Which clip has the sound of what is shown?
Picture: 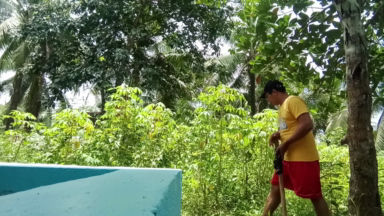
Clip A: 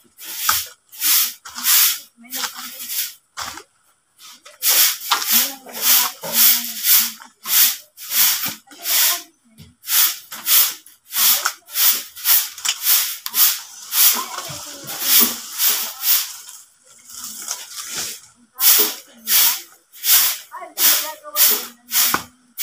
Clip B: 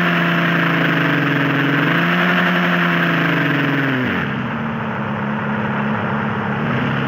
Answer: A